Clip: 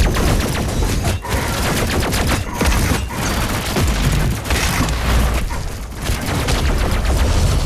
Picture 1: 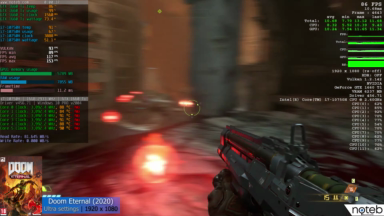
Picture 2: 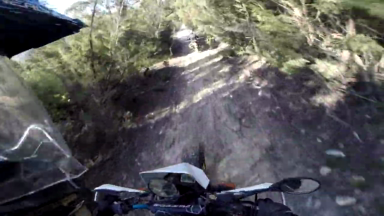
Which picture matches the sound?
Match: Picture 1